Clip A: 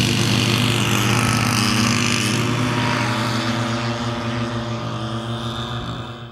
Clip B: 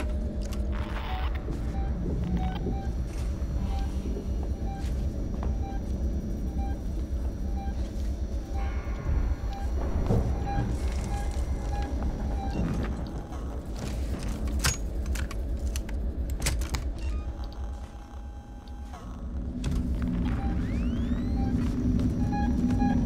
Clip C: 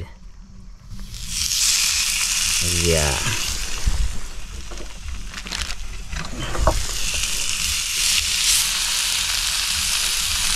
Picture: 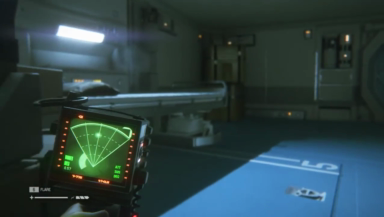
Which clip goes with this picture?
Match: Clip B